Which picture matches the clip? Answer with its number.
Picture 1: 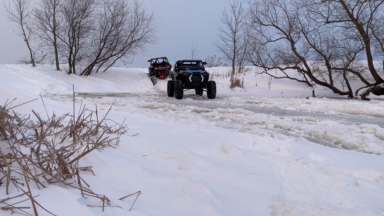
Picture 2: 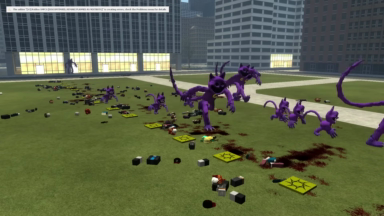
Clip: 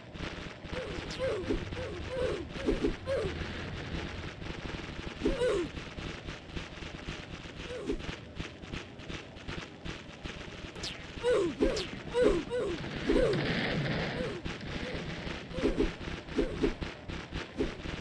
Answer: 2